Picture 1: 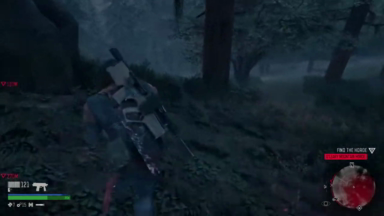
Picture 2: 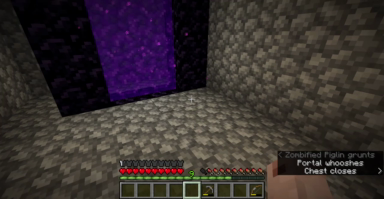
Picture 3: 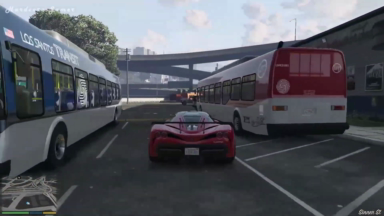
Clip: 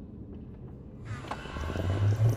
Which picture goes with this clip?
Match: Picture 2